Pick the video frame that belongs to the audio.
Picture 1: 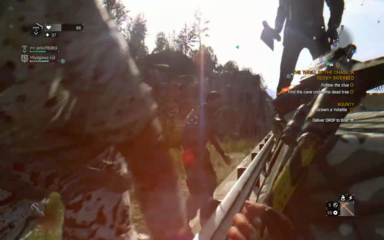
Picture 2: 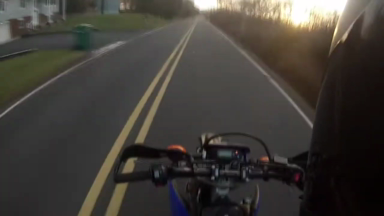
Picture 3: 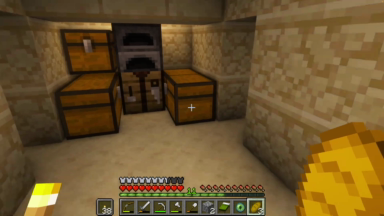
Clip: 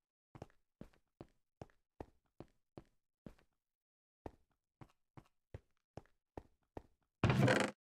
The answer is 3